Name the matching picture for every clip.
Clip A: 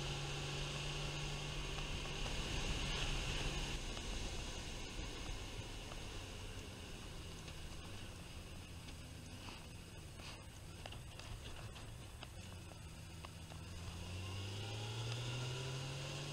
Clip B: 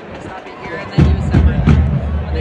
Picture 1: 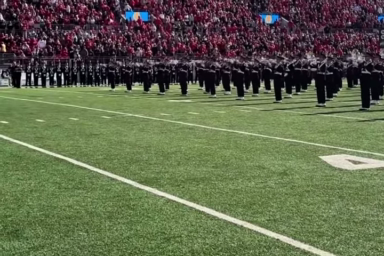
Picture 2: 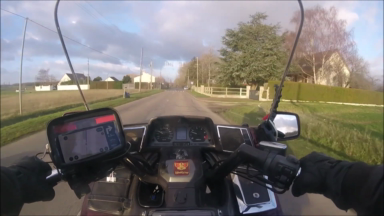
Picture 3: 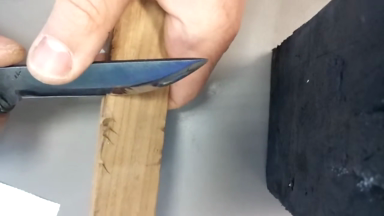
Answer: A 2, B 1